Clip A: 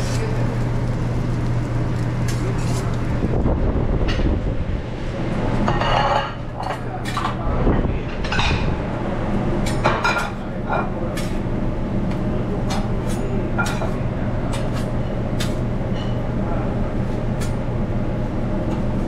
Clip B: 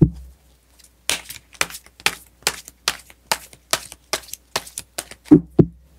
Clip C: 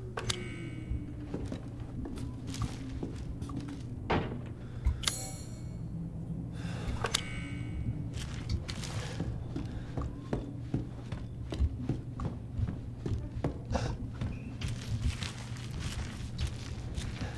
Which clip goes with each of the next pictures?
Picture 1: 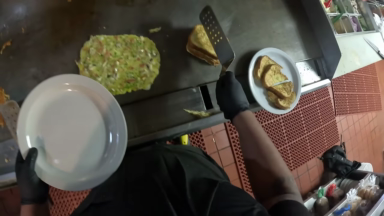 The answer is A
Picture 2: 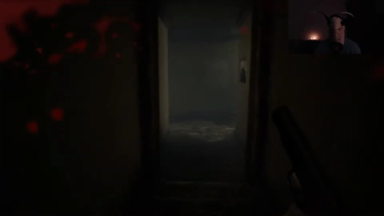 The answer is C